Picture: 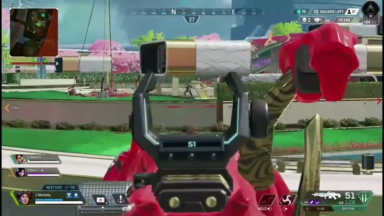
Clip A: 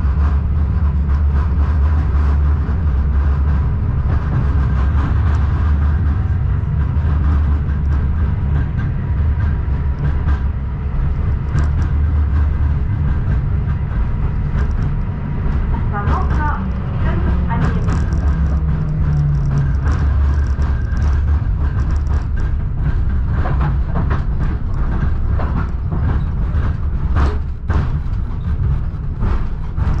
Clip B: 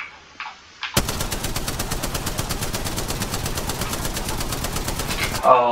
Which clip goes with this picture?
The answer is B